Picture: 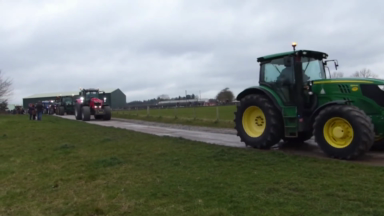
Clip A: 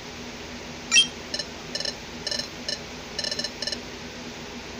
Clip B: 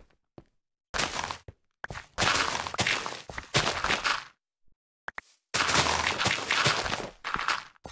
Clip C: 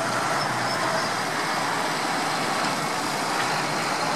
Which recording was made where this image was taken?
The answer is C